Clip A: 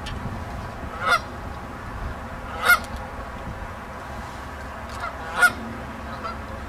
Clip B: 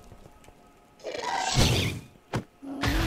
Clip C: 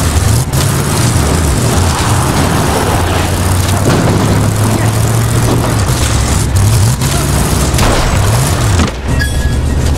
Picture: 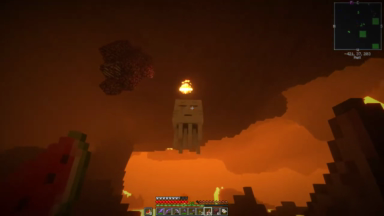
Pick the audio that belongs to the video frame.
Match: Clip B